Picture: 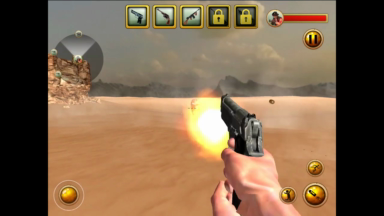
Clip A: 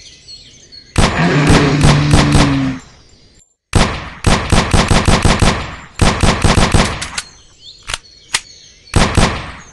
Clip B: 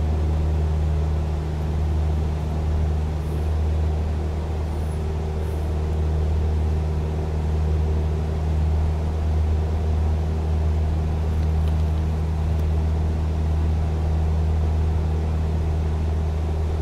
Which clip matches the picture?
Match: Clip A